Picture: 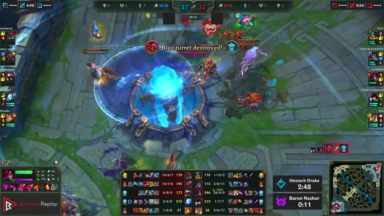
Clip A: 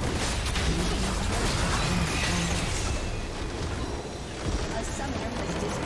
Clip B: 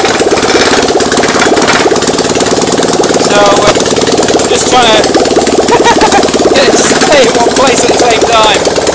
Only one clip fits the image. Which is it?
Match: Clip A